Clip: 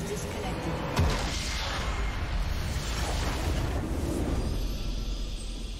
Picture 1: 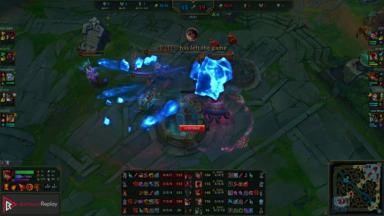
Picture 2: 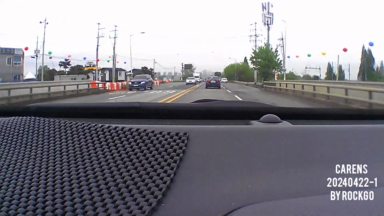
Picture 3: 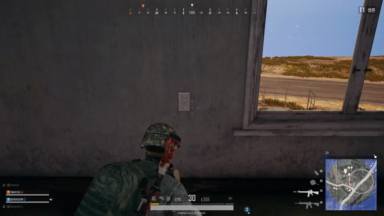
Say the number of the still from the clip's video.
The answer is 1